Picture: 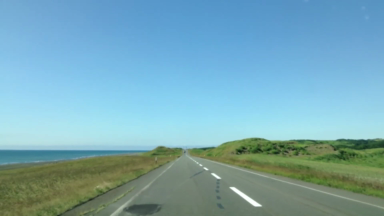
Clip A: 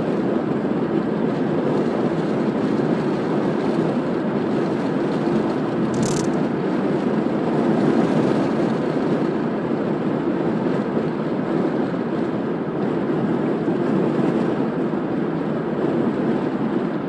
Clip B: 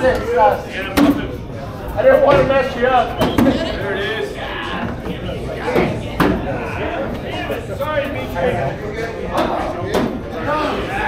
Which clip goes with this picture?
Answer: A